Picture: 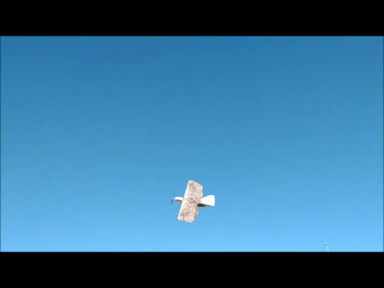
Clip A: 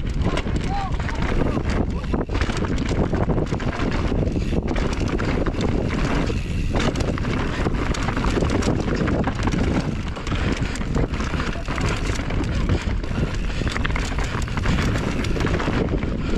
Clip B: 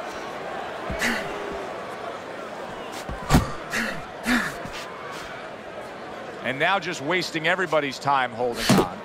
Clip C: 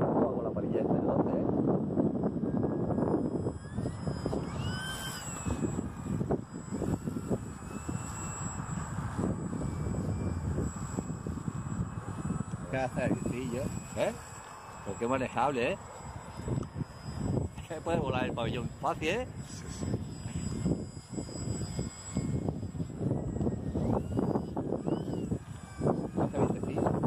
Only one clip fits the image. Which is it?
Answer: C